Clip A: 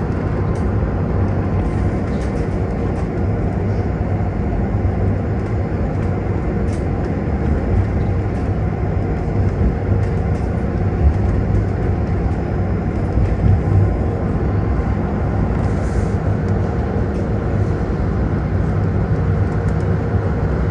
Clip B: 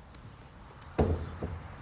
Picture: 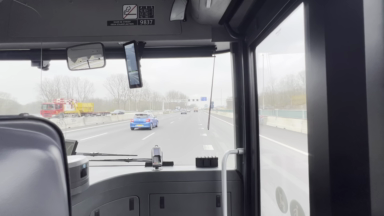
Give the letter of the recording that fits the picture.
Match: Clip A